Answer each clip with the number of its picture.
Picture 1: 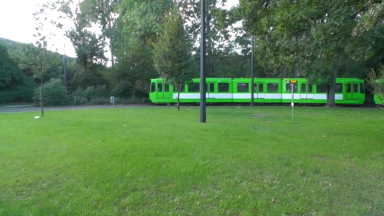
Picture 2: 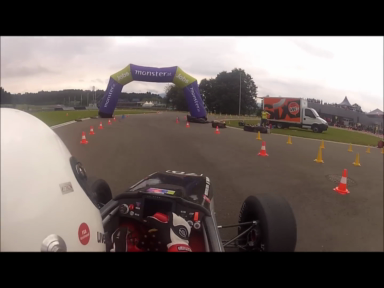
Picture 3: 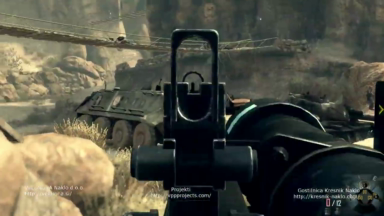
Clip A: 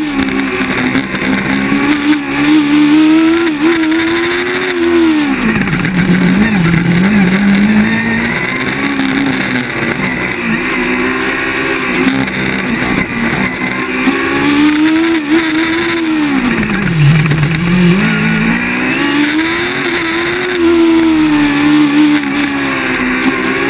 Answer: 2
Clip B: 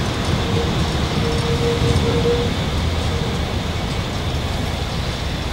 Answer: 1